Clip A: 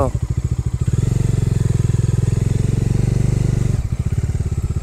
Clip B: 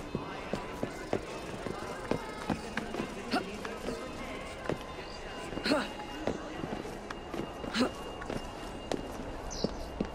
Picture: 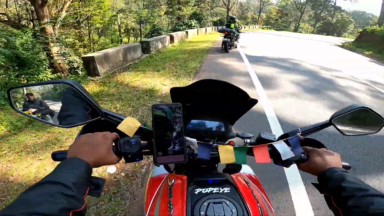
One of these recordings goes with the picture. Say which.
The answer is A